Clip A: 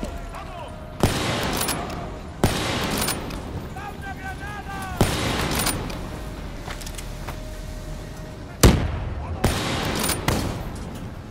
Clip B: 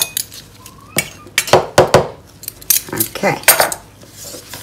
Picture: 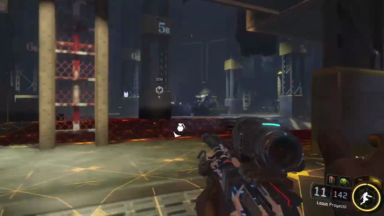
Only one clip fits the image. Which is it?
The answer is A